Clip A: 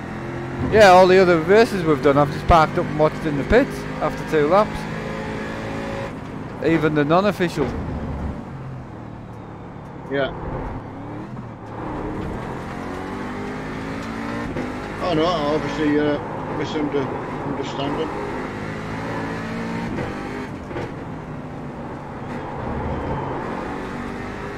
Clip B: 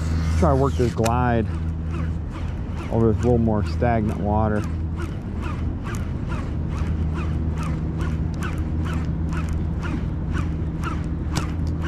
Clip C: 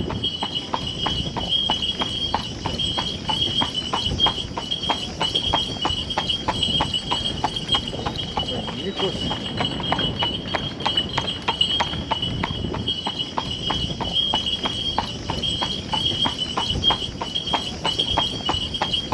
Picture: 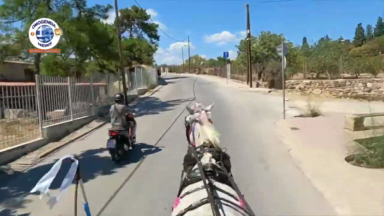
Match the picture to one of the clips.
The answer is C